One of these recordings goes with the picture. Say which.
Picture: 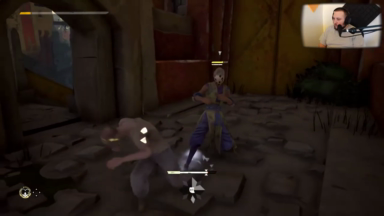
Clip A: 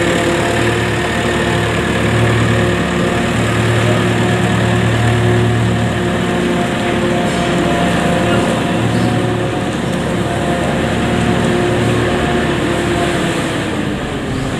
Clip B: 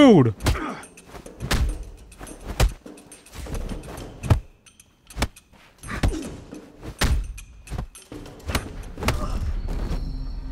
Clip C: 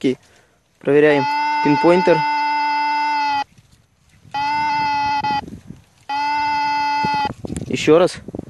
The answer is B